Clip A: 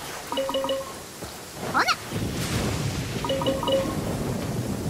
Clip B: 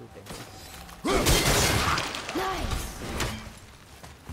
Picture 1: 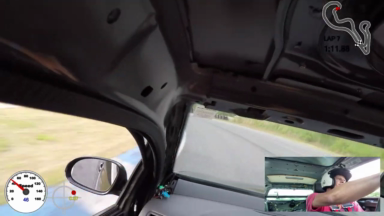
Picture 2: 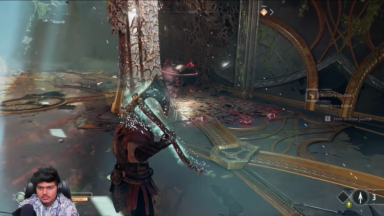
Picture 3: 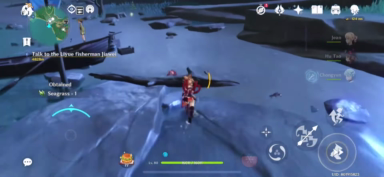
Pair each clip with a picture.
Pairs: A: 3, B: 2